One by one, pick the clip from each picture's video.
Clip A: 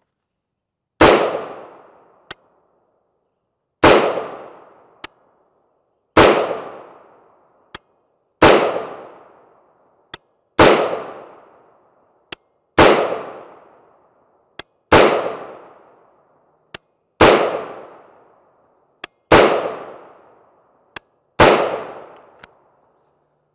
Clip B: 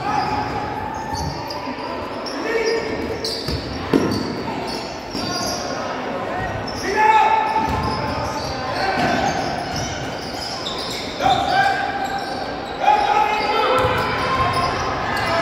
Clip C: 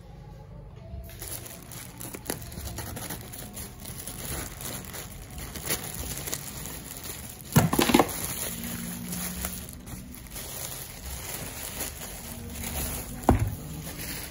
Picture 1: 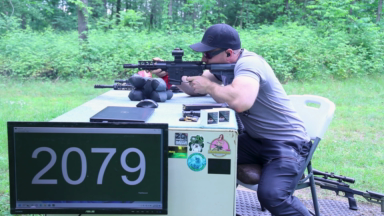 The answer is A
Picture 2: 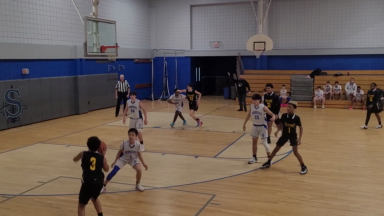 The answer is B